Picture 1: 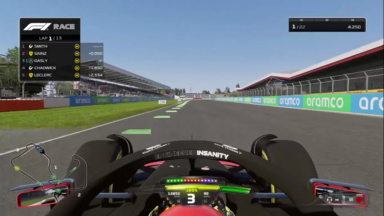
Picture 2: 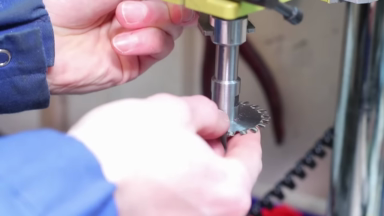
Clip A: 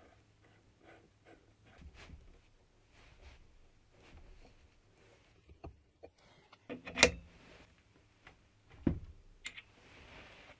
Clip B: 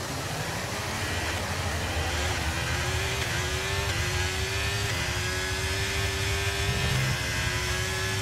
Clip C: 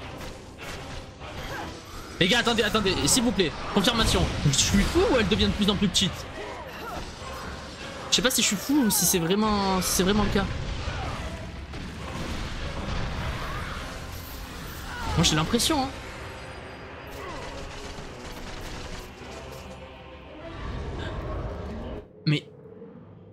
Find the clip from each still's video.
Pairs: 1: B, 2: A